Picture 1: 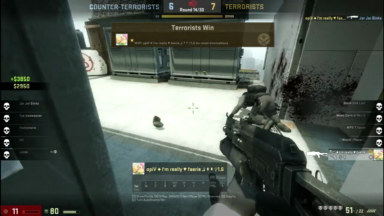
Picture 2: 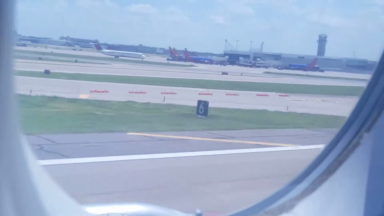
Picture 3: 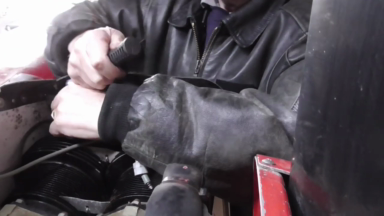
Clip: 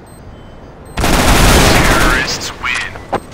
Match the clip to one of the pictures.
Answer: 1